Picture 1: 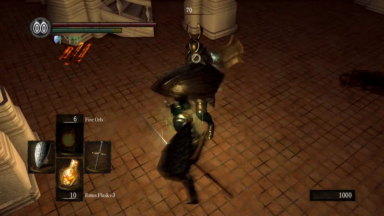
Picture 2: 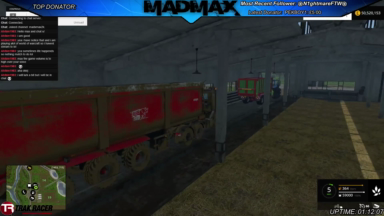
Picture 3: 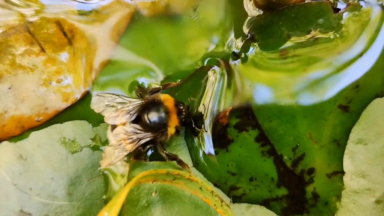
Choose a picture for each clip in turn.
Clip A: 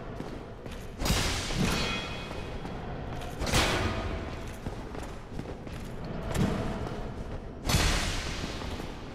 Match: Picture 1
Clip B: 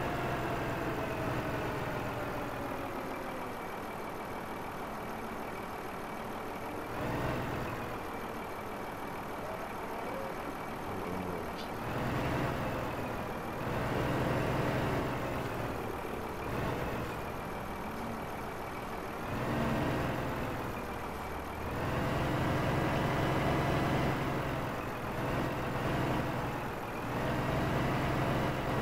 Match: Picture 2